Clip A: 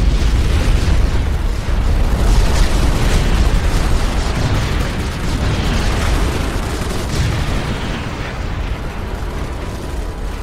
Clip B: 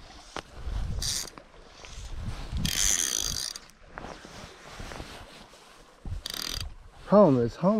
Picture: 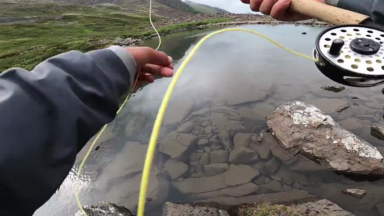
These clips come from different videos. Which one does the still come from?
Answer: B